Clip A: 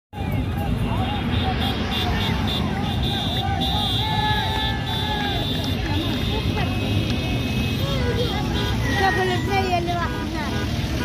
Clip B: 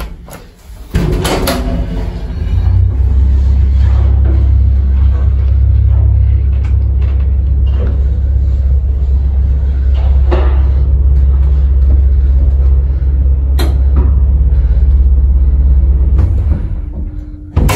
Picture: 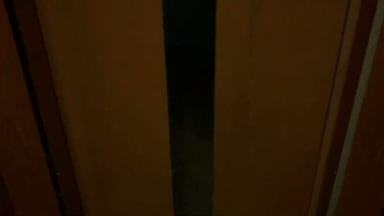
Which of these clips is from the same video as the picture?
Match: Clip B